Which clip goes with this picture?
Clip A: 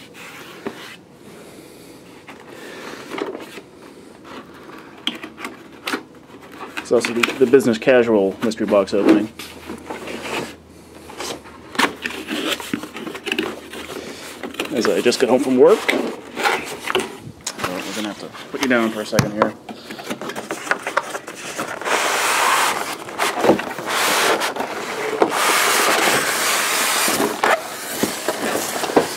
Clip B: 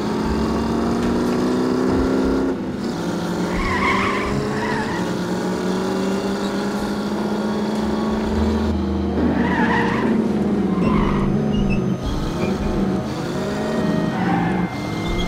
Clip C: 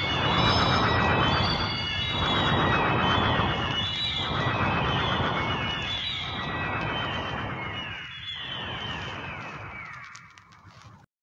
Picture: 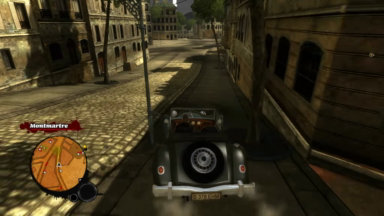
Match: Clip B